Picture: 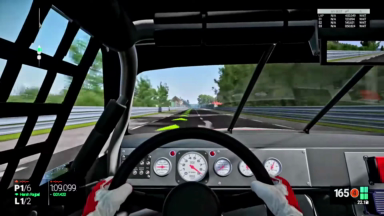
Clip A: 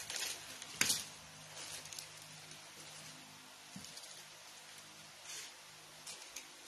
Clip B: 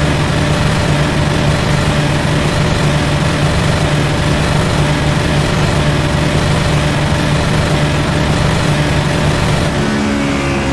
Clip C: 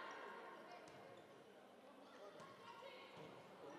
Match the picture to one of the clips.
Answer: B